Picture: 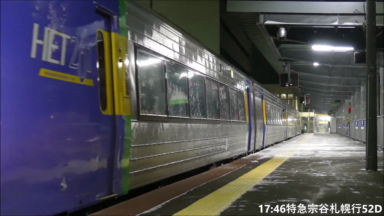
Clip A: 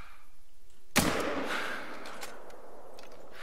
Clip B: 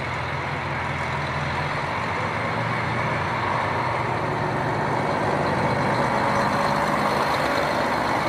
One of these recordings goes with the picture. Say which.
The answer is B